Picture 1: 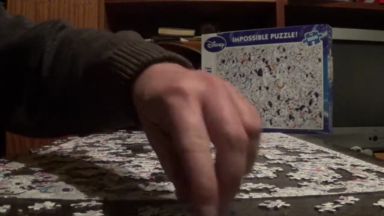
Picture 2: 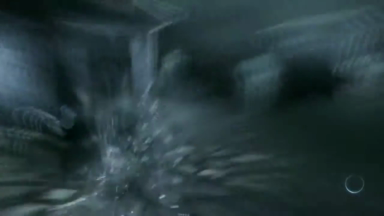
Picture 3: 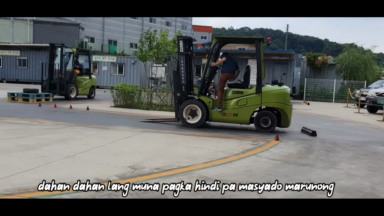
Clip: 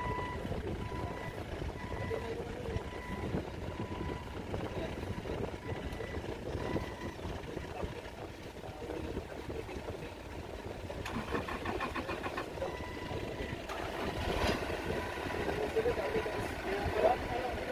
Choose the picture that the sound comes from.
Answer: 3